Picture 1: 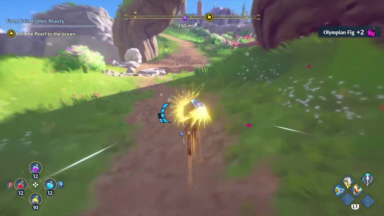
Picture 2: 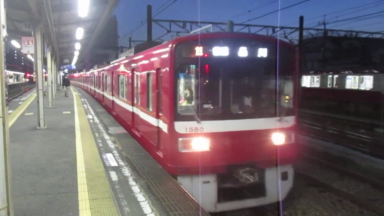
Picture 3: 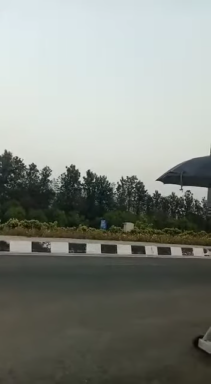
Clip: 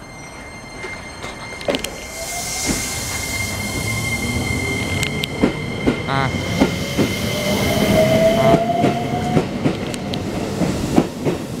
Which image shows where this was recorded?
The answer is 2